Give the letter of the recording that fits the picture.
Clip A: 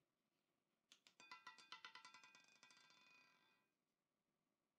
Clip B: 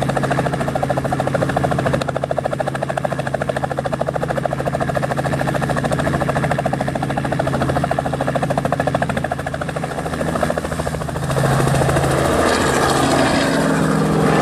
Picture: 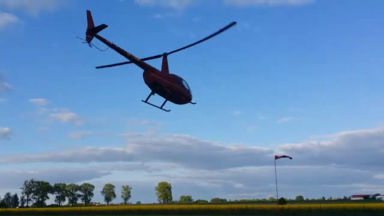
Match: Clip B